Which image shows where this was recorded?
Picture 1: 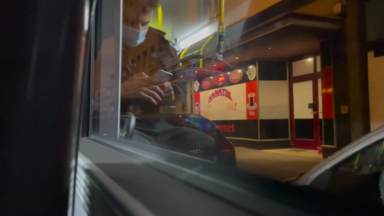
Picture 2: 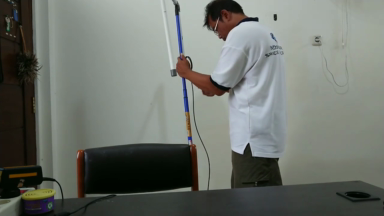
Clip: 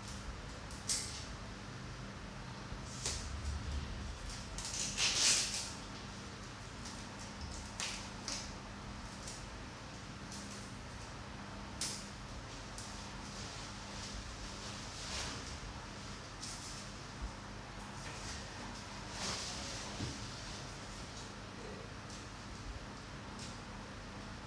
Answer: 2